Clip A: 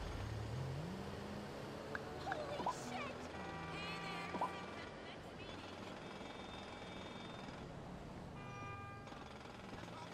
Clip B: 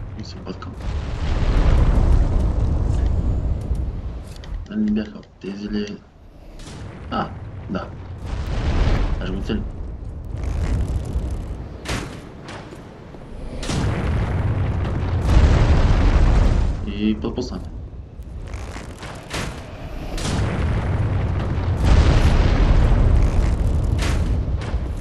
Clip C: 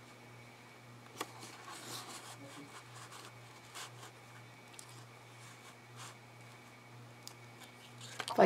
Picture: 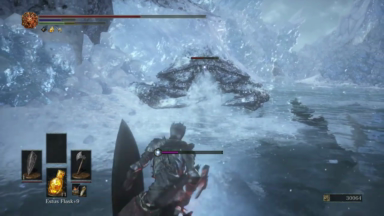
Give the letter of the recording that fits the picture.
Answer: B